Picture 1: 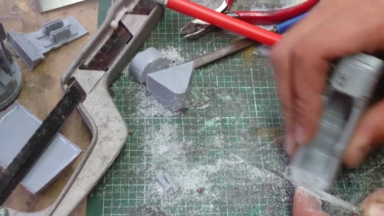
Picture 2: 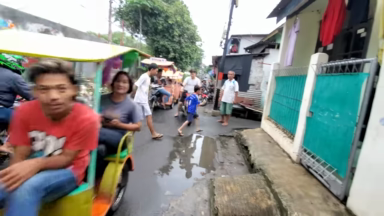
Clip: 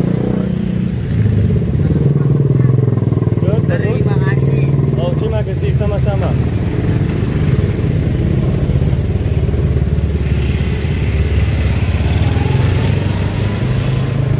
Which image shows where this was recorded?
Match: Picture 2